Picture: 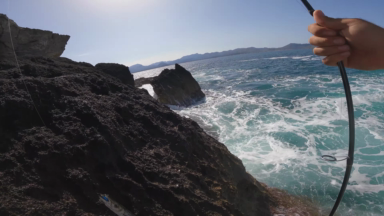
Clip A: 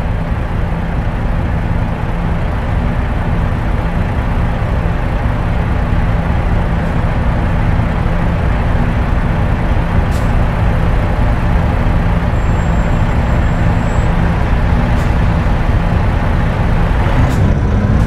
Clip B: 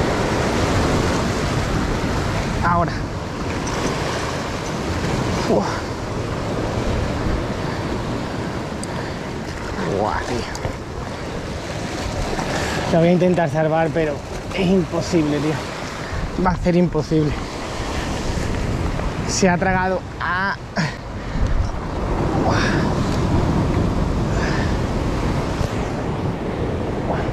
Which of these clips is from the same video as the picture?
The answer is B